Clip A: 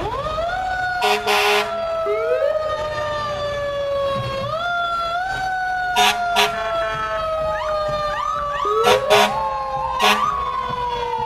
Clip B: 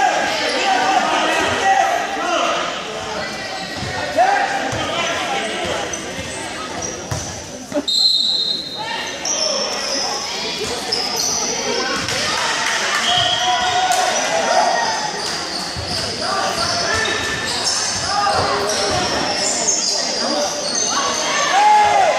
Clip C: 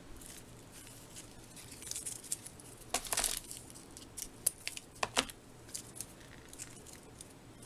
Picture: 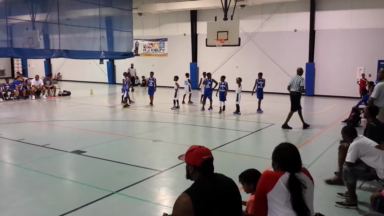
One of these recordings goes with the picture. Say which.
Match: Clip B